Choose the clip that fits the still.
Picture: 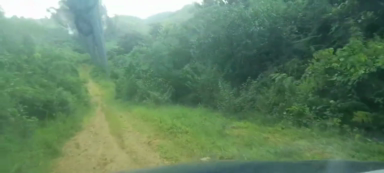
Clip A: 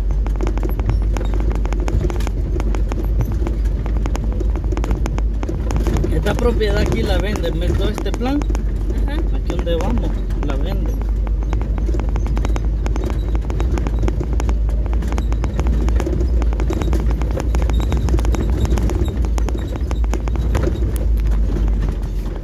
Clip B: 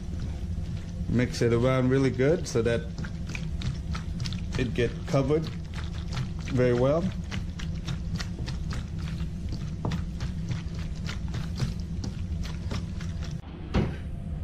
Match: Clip A